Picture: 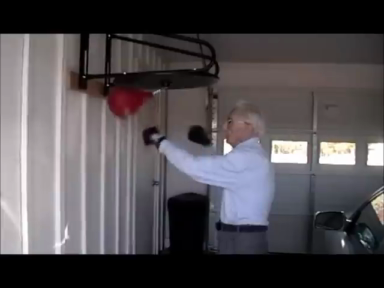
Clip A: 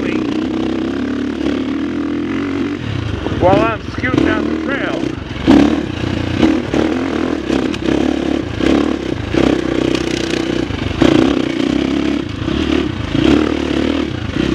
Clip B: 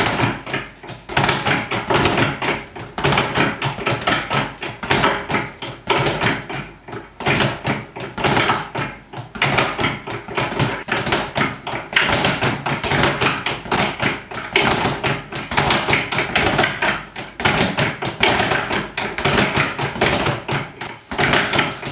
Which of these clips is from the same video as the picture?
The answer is B